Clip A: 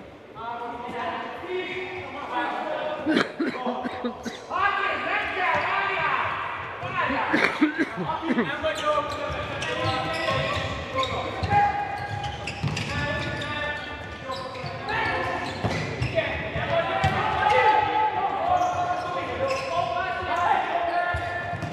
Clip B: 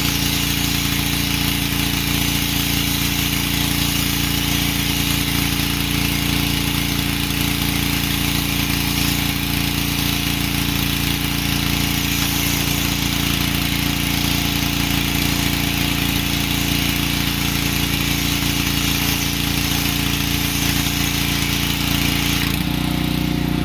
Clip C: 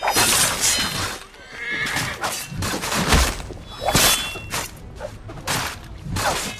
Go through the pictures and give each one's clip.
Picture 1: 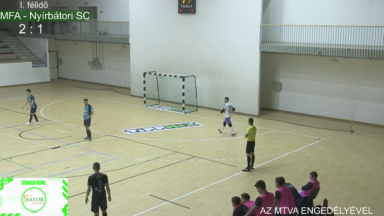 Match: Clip A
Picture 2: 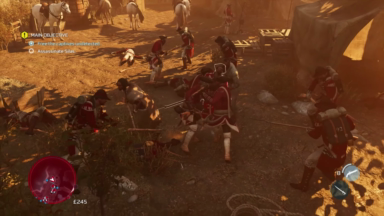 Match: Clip C